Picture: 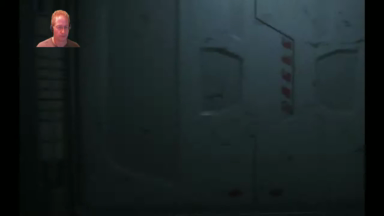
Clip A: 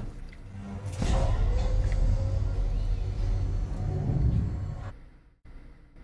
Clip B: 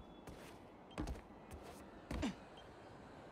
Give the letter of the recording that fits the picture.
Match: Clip A